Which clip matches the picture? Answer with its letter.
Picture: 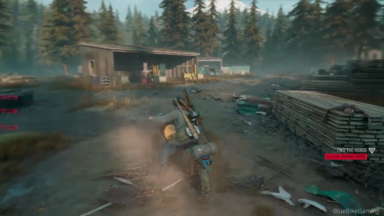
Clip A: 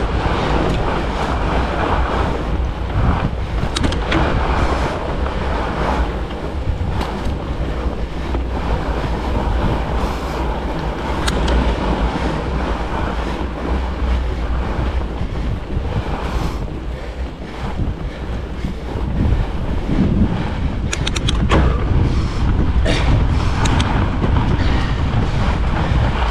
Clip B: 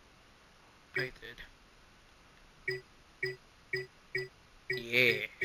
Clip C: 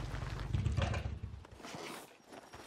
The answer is C